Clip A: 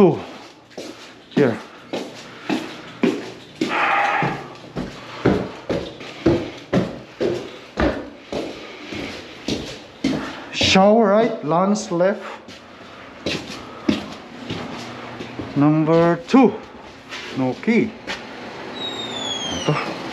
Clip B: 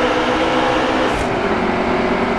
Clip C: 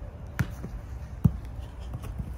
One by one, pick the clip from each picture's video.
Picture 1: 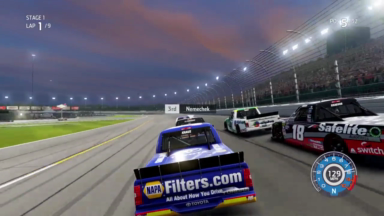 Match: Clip B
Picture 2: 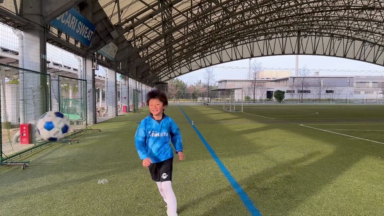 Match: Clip C